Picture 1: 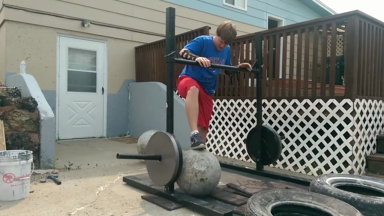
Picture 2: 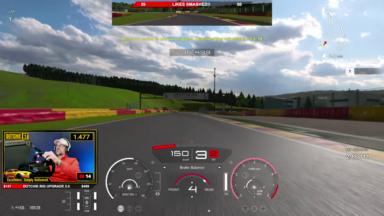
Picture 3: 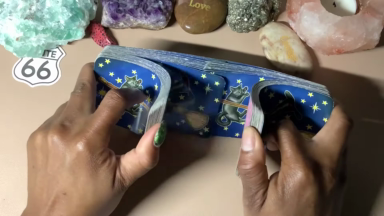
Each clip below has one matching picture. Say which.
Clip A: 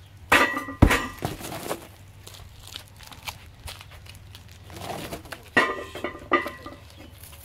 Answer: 1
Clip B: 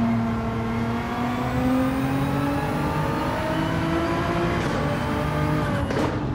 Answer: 2